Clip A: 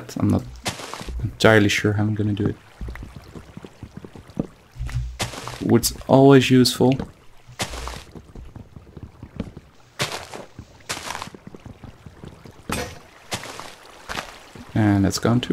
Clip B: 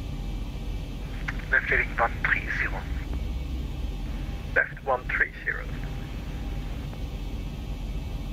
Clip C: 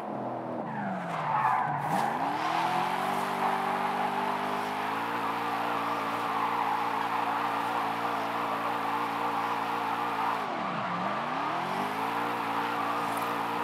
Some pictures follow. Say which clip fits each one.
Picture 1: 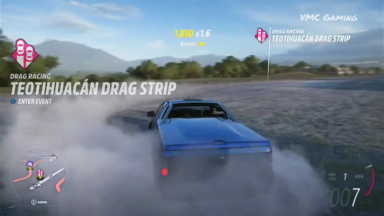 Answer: C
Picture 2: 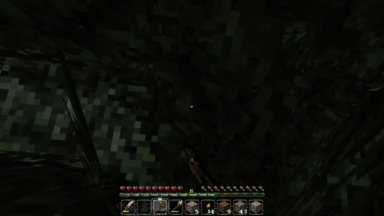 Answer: A